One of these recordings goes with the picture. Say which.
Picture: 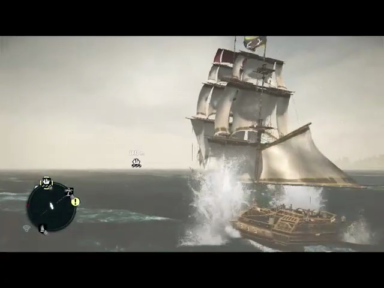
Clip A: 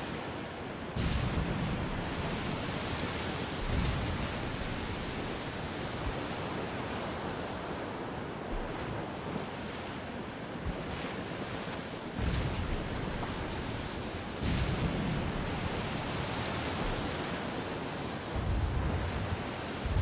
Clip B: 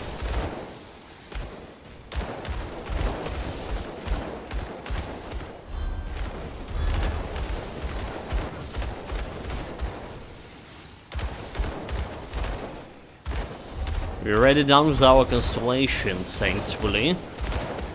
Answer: A